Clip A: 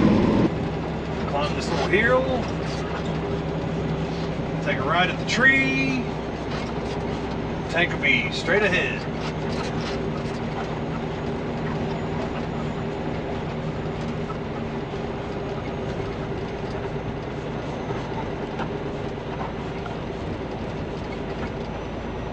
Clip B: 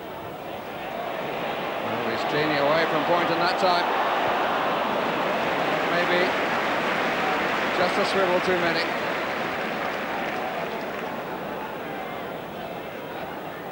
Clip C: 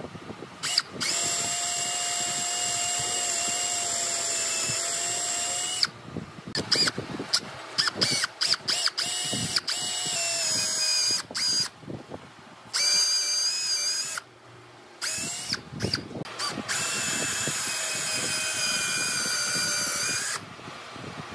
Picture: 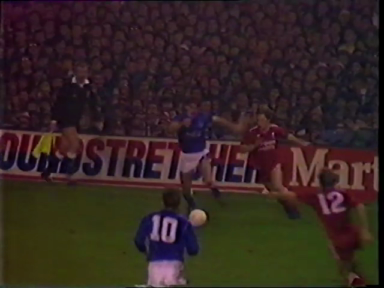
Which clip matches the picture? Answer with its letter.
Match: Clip B